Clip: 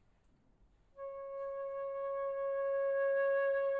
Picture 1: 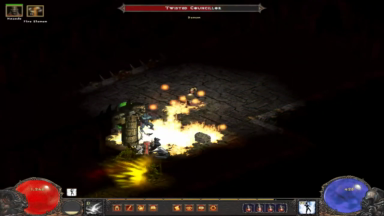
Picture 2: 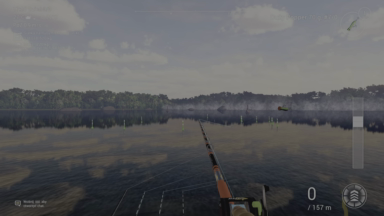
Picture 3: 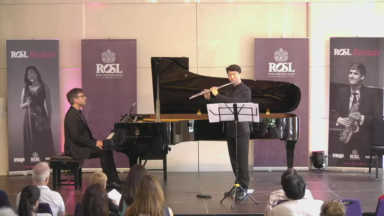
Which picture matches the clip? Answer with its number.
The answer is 3